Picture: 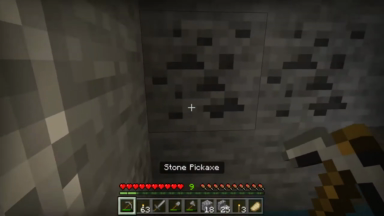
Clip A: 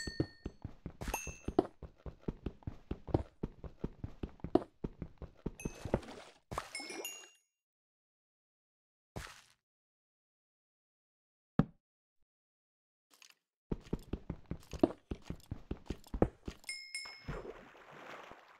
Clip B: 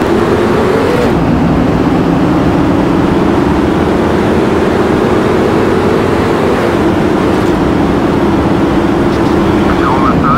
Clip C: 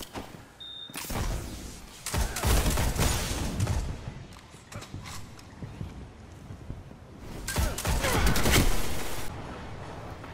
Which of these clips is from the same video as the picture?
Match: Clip A